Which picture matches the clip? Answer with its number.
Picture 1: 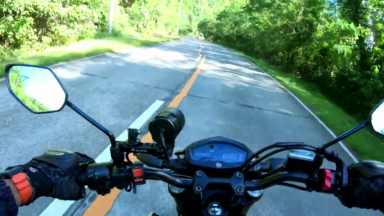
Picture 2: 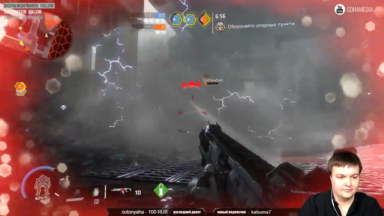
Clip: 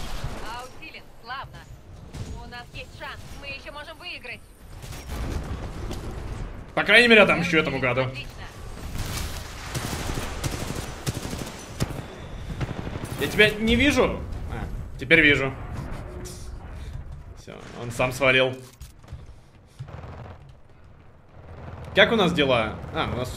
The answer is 2